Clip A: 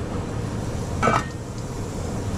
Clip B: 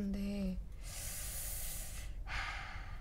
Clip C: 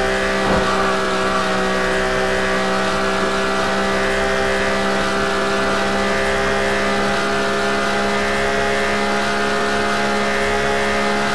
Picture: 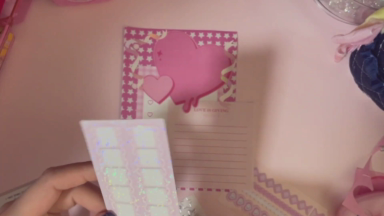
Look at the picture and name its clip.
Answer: B